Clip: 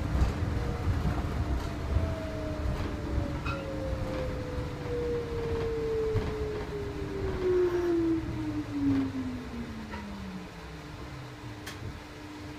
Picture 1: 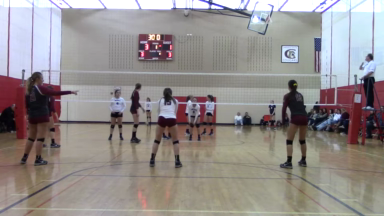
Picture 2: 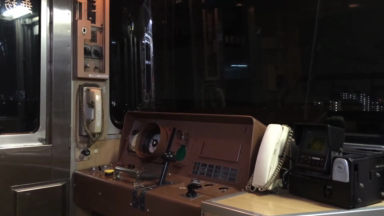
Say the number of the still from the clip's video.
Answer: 2